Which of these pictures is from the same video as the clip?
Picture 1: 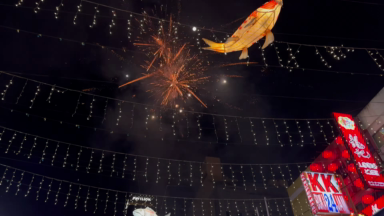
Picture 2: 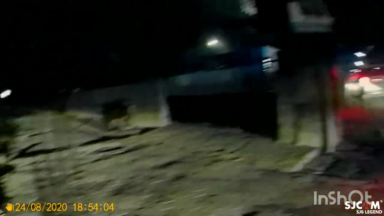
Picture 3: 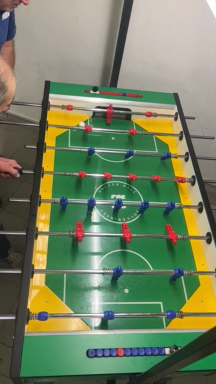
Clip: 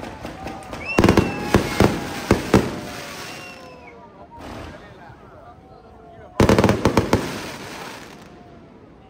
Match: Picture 1